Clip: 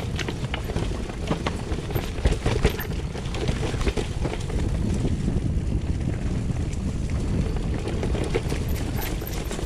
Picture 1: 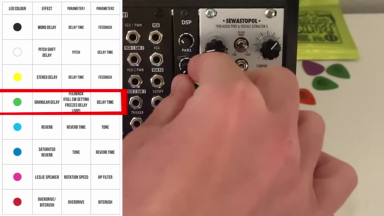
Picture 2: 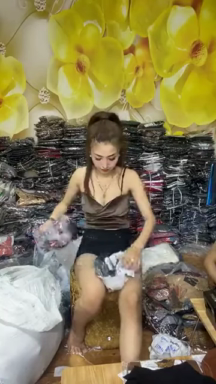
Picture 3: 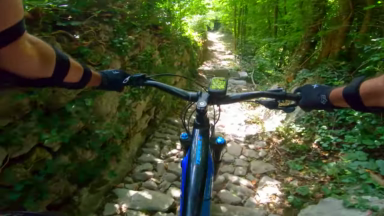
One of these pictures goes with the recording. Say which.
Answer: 3